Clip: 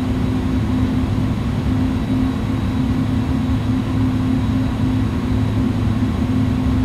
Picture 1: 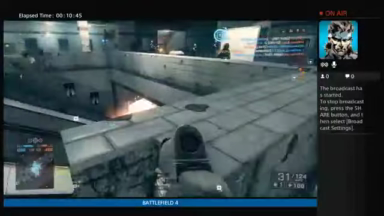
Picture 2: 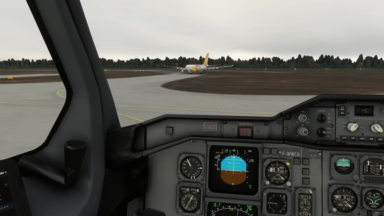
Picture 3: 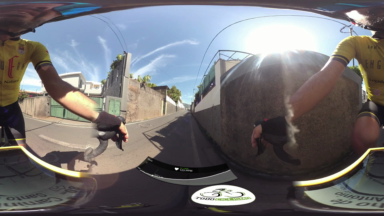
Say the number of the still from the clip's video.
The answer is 2